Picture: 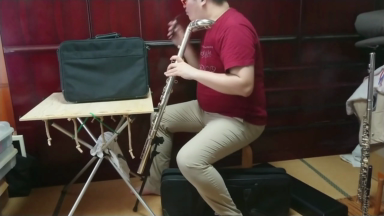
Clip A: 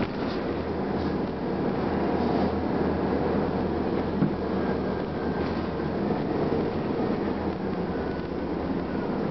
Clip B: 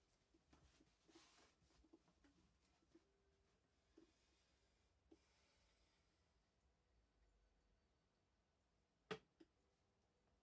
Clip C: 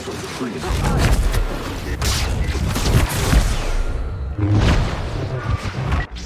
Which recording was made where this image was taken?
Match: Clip B